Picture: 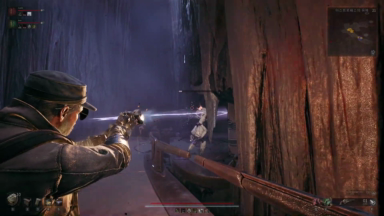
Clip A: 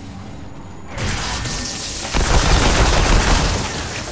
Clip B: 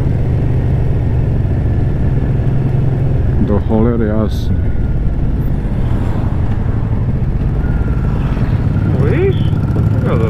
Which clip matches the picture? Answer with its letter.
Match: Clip A